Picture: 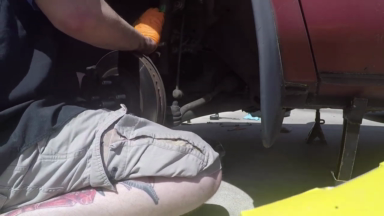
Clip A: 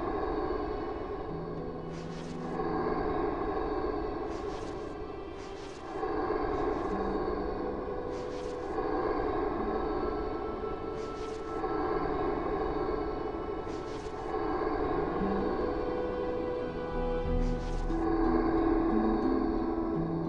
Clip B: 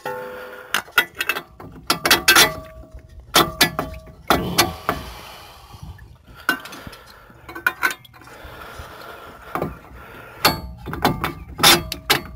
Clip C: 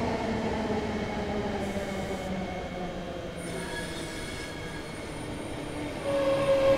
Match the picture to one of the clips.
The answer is B